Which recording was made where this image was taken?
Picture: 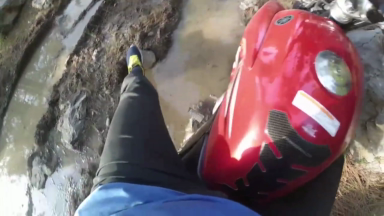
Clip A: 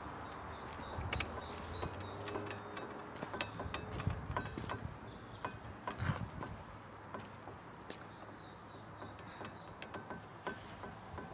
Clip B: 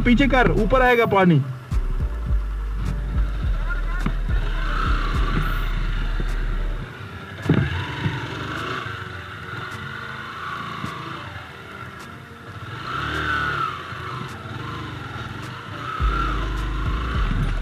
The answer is B